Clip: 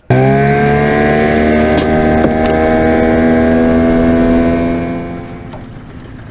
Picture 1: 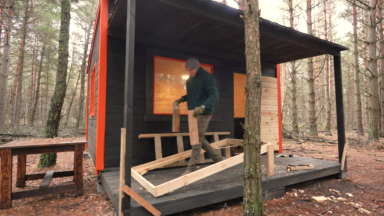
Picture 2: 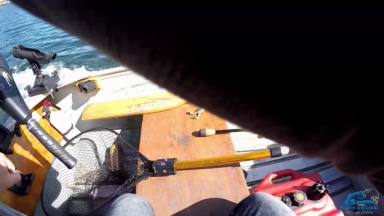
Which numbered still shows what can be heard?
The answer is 2